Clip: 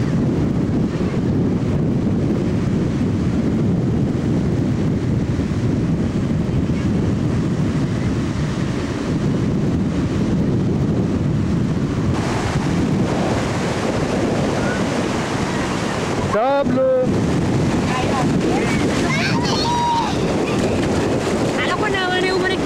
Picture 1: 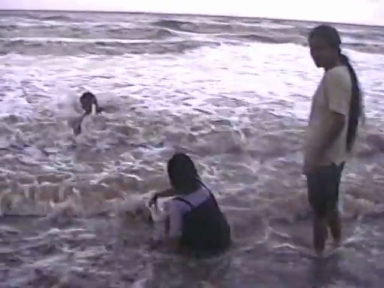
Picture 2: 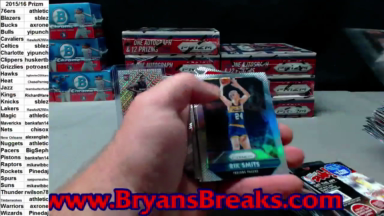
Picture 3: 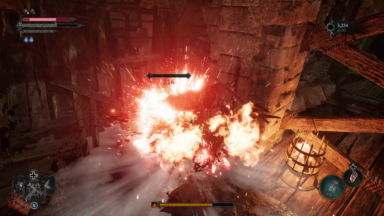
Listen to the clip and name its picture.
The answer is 1